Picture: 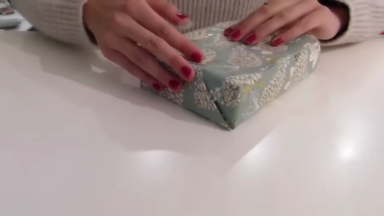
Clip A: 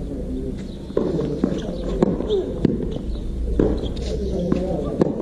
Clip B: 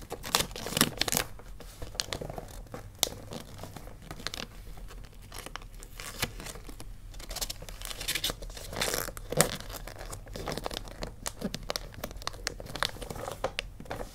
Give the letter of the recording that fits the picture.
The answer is B